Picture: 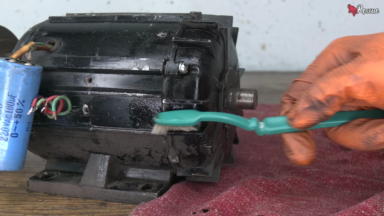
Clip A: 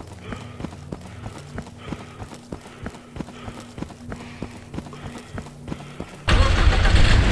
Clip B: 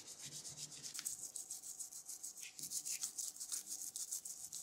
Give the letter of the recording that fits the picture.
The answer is B